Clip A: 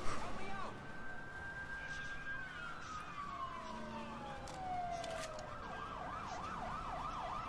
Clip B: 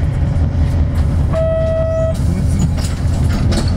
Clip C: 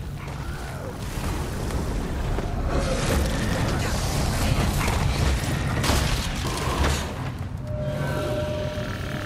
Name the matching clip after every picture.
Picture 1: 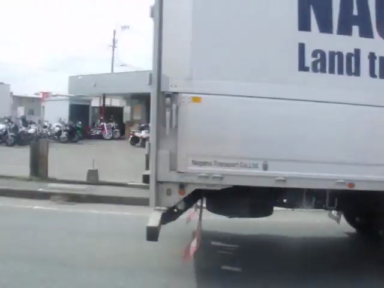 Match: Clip B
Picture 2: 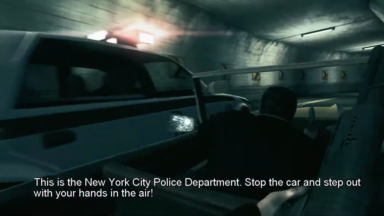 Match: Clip A